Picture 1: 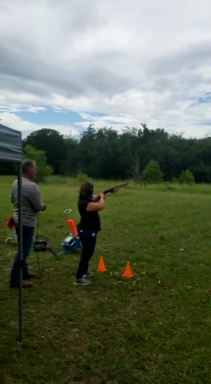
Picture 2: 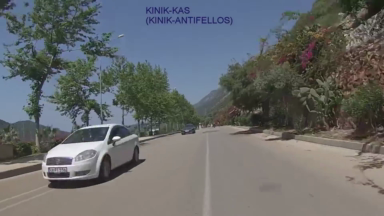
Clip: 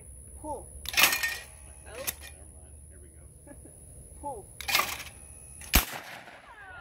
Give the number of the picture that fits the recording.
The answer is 1